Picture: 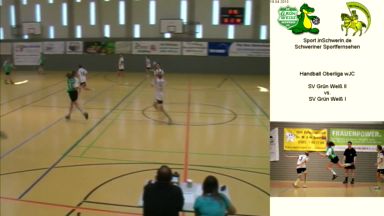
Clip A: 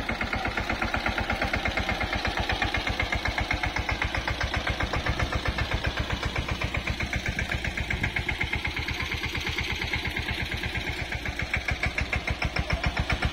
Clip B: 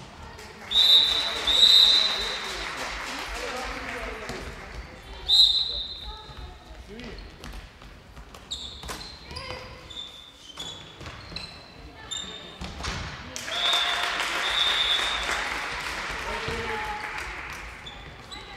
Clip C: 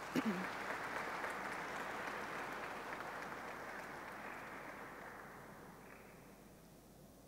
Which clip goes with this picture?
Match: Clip B